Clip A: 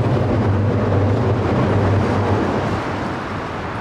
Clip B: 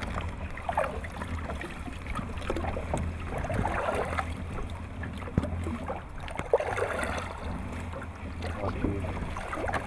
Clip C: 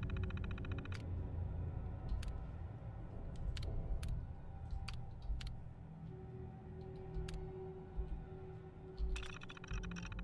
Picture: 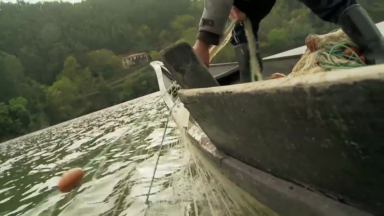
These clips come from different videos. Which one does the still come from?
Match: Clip B